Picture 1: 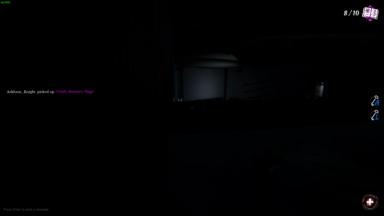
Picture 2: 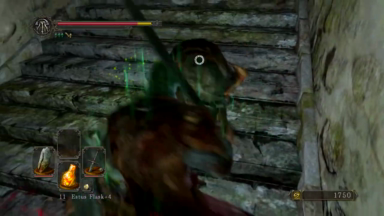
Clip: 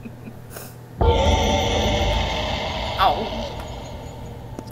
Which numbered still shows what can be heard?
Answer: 1